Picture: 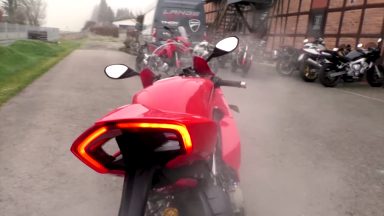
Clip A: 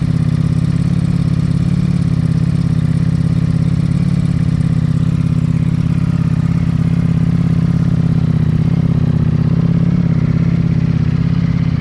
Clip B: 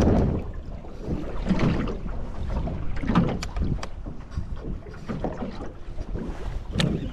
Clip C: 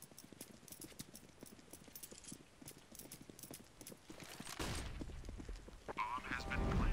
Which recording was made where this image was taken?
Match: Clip A